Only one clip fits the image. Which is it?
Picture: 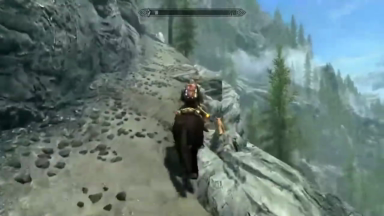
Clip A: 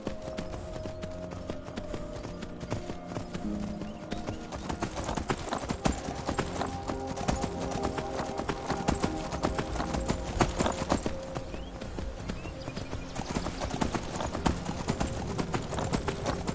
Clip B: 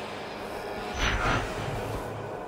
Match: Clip A